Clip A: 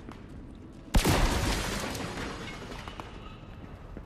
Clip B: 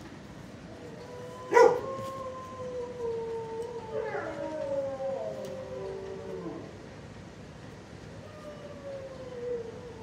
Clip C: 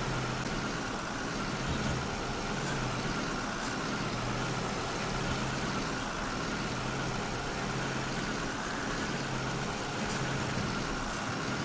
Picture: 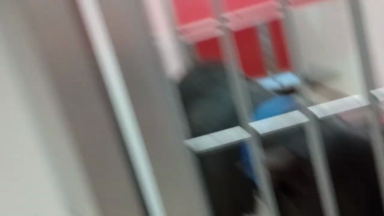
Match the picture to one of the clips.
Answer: B